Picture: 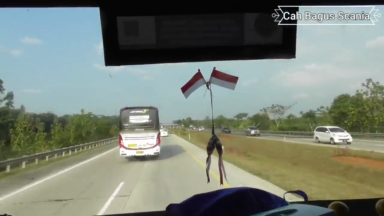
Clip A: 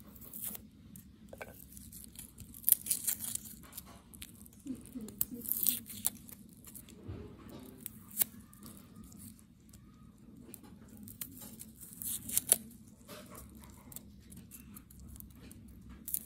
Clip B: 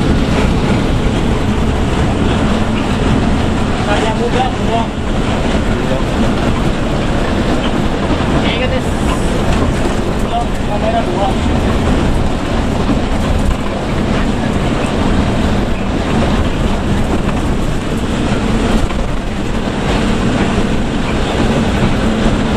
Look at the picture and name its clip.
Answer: B